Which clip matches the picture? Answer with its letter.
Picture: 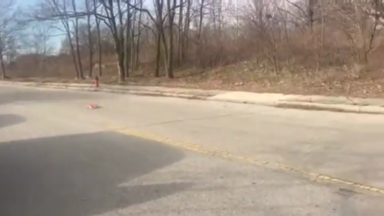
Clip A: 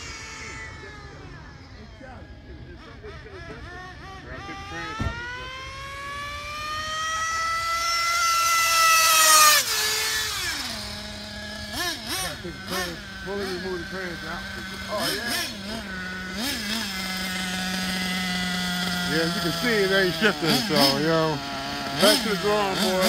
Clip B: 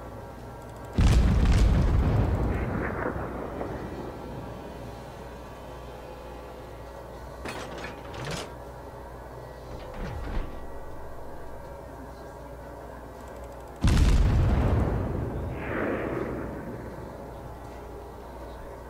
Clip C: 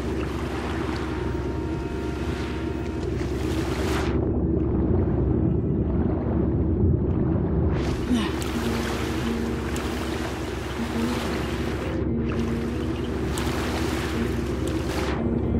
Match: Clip A